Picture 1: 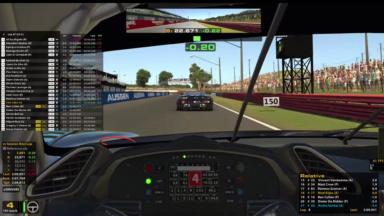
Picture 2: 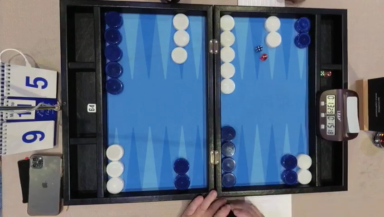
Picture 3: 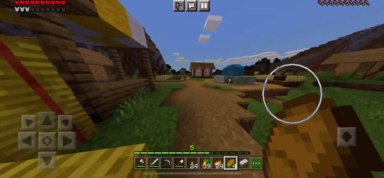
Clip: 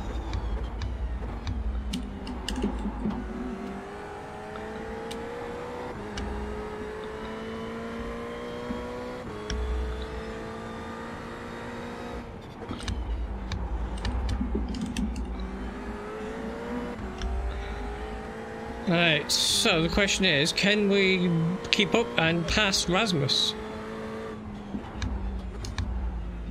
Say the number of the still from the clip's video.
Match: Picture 1